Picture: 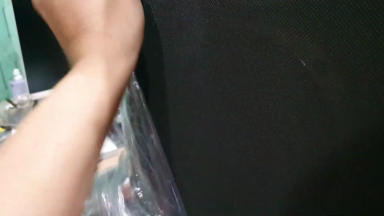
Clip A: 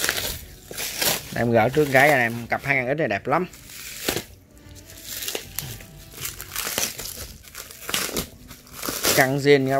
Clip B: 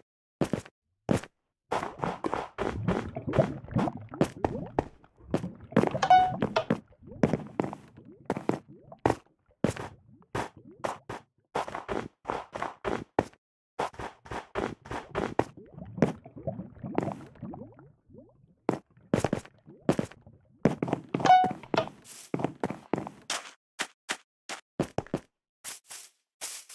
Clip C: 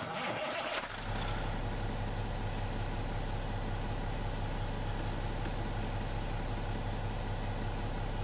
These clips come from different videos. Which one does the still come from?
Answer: A